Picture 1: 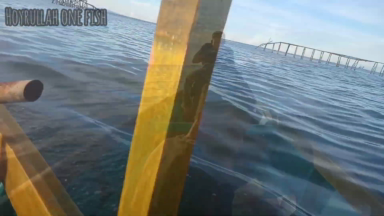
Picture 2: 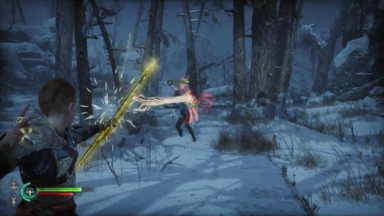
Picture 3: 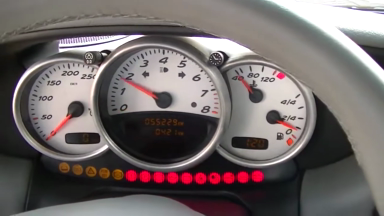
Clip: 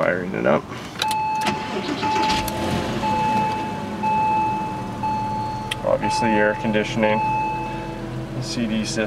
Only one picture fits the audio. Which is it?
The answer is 3